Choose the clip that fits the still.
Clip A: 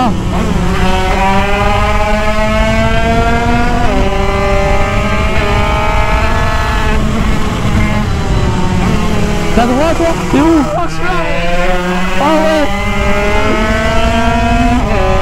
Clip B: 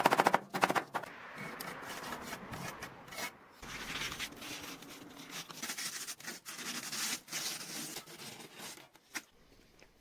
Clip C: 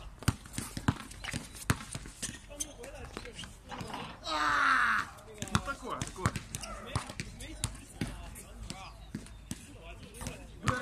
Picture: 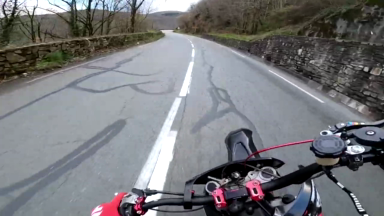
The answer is A